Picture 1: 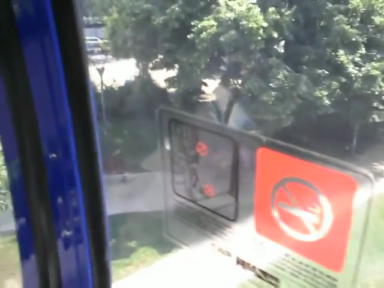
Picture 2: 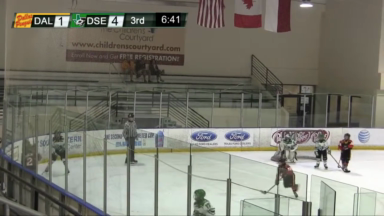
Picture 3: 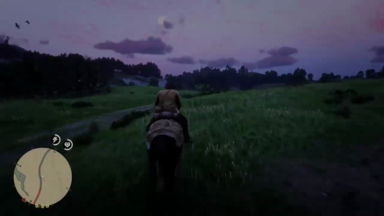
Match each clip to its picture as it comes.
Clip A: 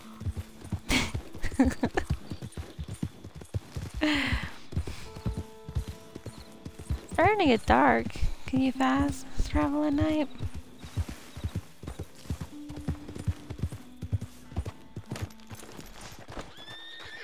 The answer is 3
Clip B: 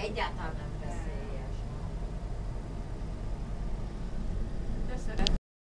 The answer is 1